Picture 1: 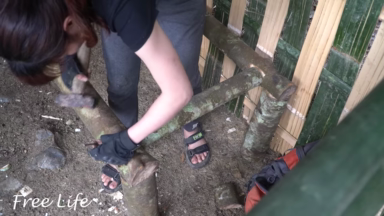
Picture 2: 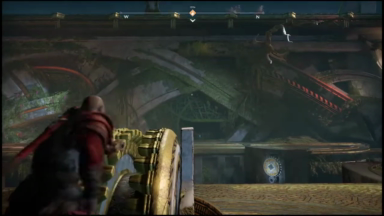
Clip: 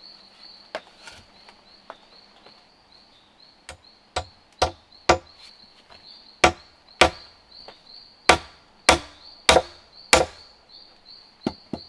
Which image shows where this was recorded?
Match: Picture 1